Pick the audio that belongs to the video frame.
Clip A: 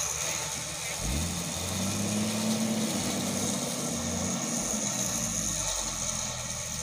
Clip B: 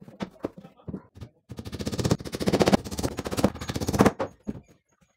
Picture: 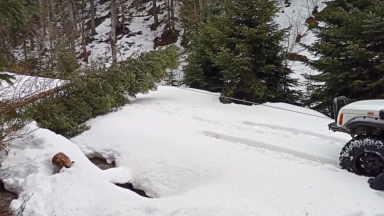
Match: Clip A